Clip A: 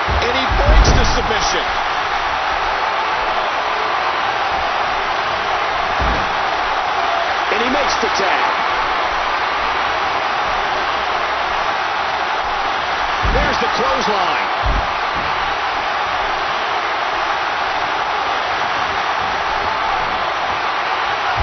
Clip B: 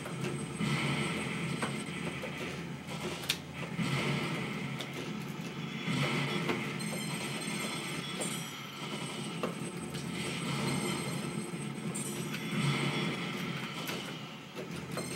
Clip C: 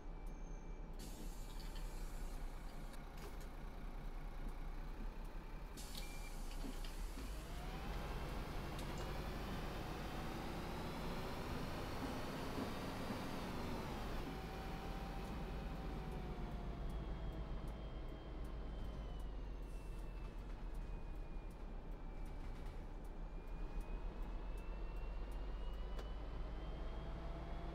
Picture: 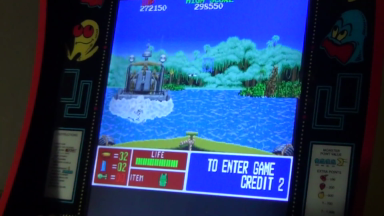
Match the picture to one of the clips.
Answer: B